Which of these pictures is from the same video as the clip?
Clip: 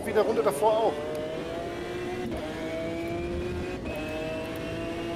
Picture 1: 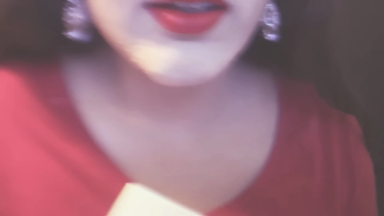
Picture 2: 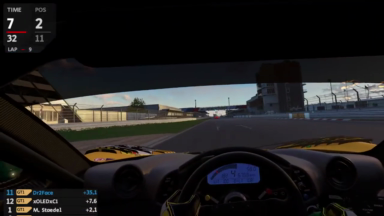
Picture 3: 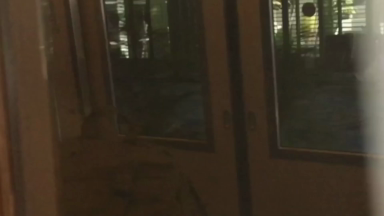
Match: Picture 2